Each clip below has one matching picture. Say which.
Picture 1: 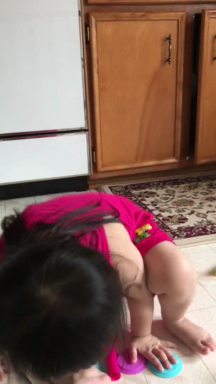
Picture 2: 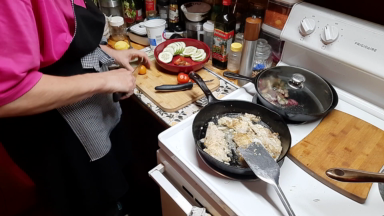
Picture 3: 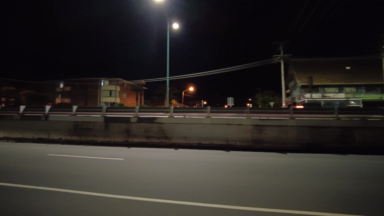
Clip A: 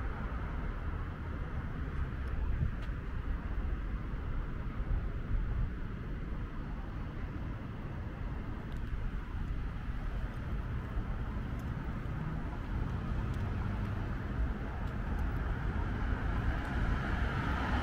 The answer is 3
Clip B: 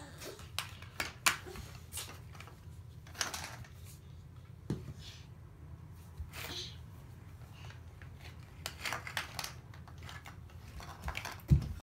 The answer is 1